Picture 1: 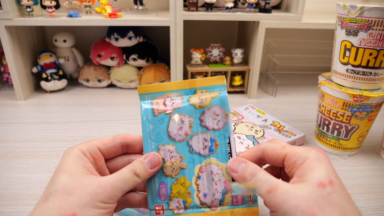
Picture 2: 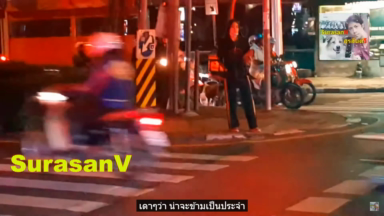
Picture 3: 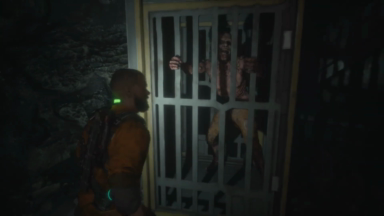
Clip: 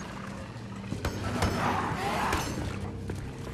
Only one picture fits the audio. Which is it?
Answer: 3